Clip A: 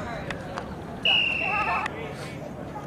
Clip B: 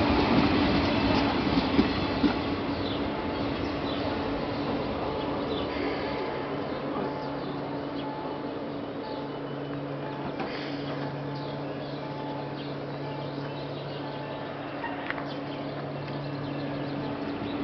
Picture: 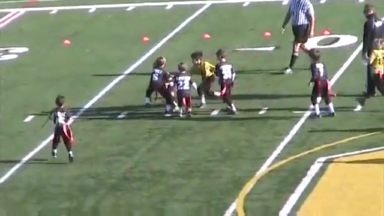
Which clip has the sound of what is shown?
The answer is A